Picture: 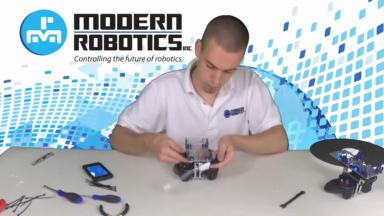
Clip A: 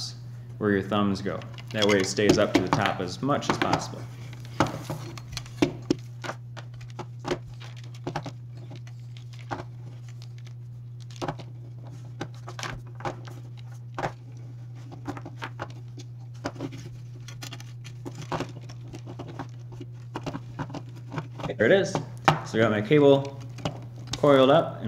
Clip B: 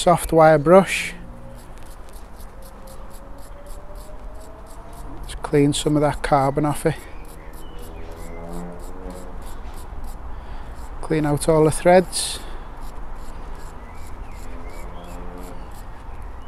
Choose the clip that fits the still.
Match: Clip A